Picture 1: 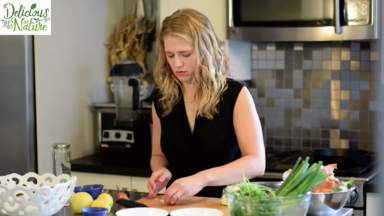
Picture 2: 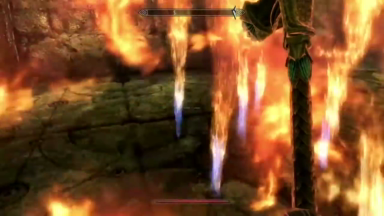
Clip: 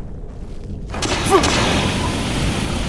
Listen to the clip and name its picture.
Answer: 2